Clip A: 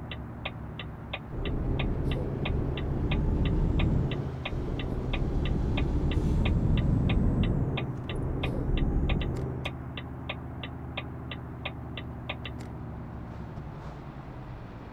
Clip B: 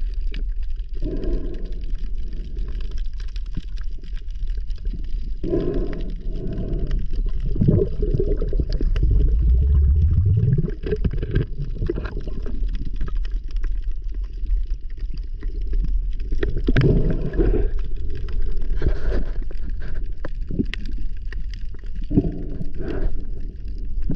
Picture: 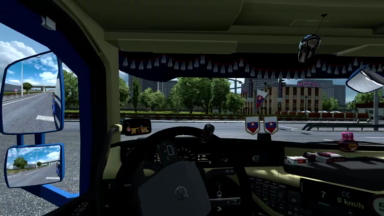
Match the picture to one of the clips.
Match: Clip A